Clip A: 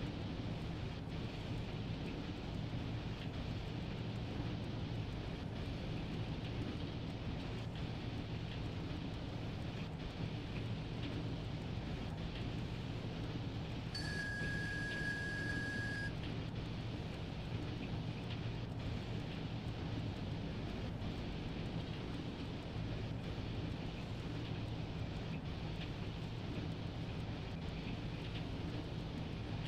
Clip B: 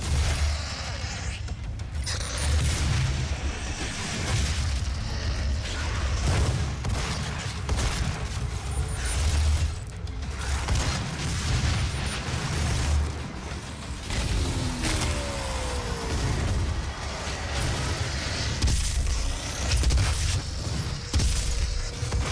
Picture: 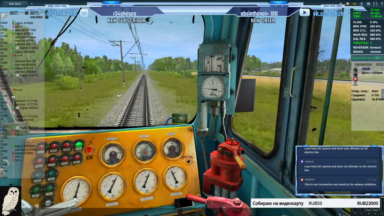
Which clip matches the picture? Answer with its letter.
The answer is A